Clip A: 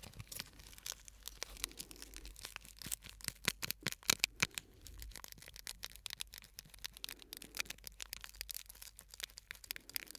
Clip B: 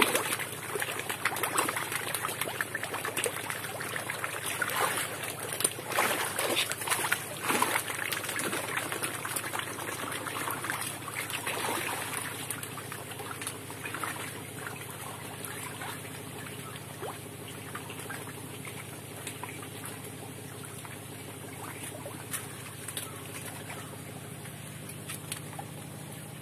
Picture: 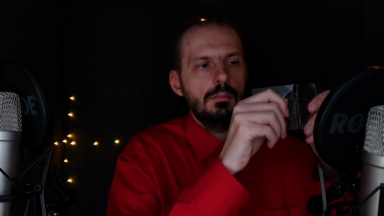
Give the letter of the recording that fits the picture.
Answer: A